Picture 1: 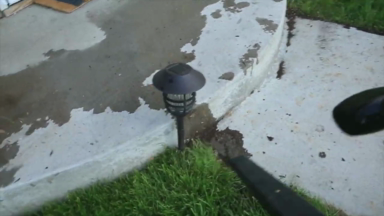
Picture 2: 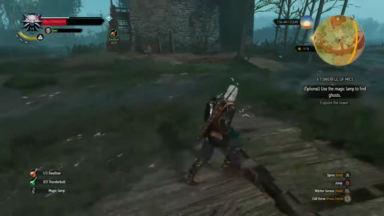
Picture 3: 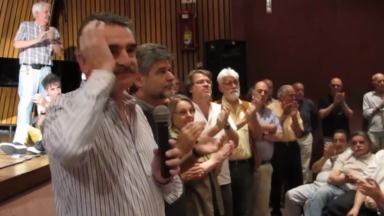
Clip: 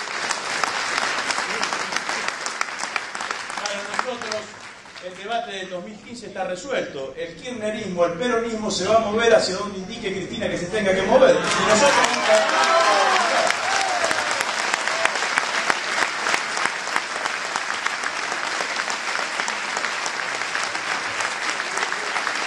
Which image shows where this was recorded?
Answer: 3